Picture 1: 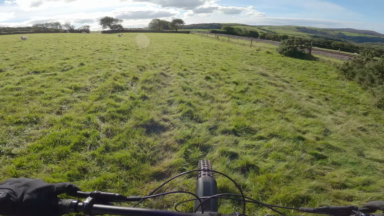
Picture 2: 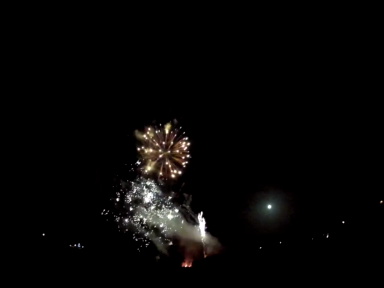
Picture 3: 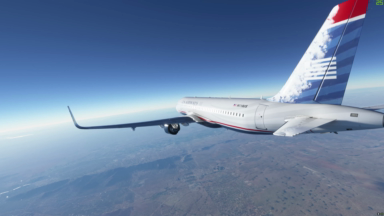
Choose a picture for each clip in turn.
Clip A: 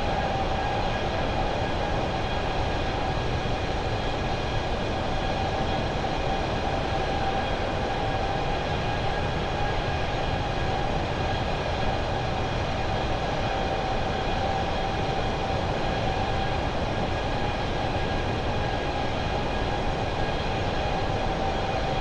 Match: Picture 3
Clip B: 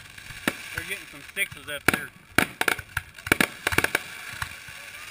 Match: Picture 2